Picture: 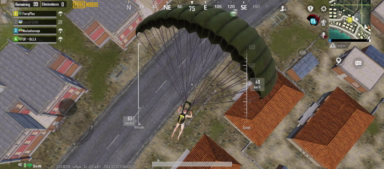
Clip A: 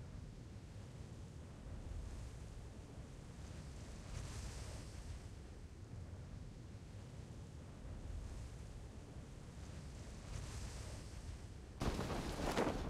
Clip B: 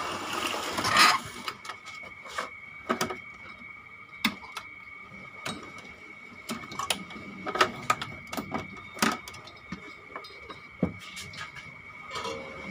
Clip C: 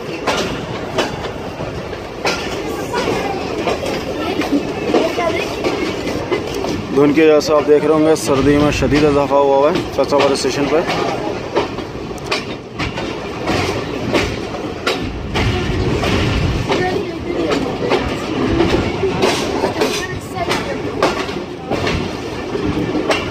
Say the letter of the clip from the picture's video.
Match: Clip A